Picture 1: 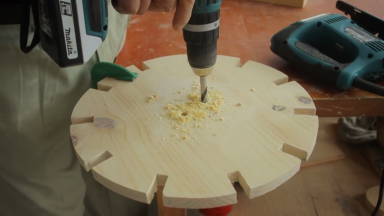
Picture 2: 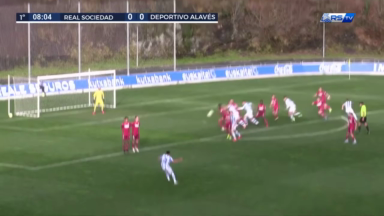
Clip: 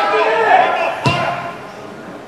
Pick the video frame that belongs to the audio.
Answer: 2